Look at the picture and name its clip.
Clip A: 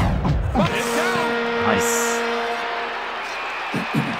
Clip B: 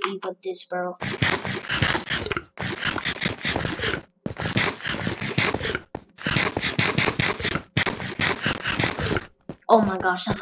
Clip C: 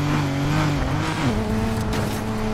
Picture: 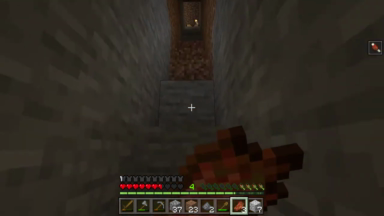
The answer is B